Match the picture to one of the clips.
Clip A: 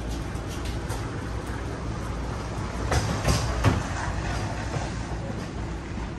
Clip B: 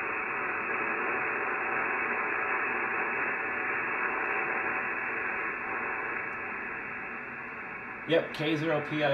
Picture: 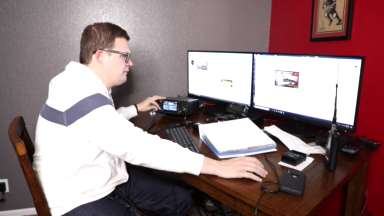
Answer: B